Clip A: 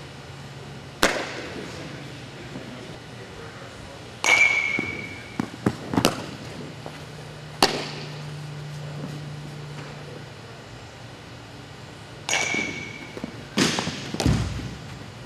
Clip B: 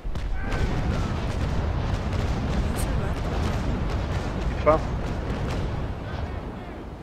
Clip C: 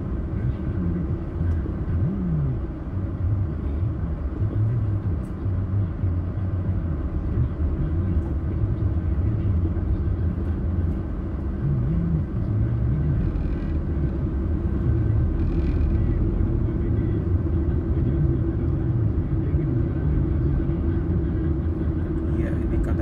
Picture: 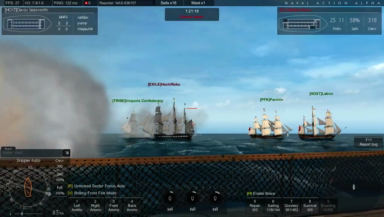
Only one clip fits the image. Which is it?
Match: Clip B